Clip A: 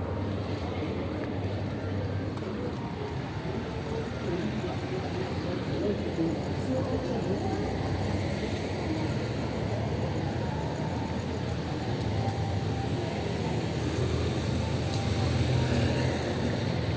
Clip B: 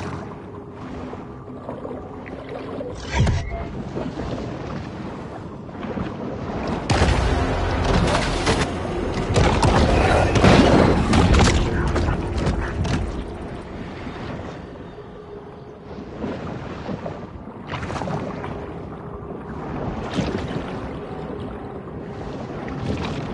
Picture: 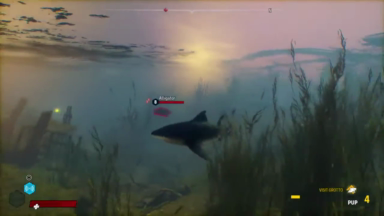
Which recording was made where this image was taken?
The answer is B